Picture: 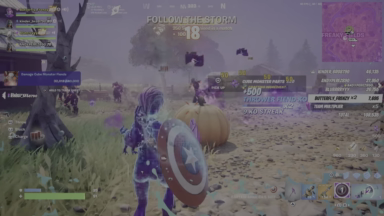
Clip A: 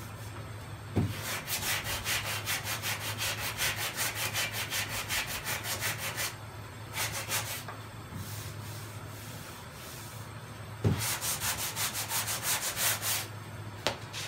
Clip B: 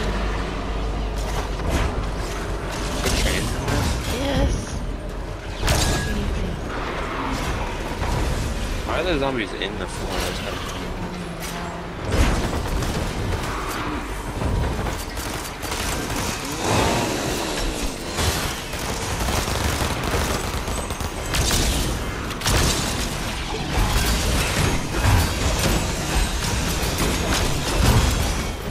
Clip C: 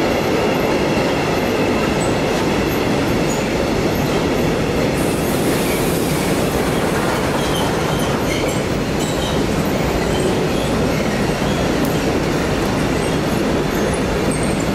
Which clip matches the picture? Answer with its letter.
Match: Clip B